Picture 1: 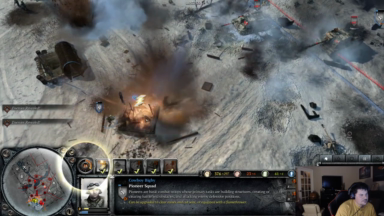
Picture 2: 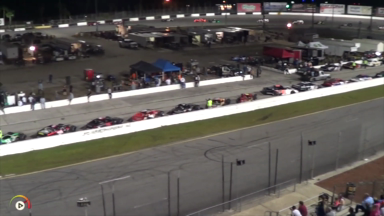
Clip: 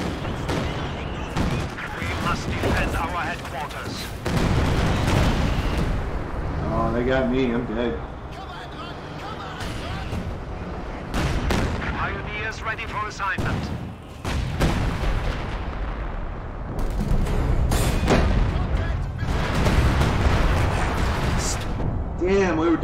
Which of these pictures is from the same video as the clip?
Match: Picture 1